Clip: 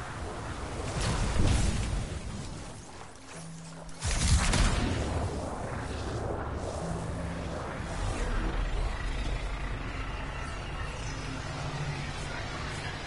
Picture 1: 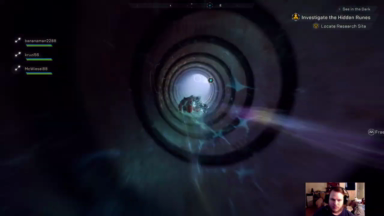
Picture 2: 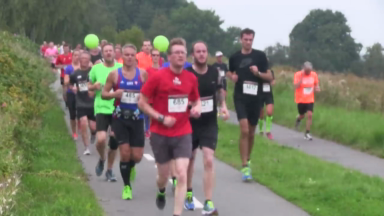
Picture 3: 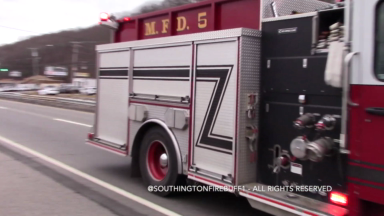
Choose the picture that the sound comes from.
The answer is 1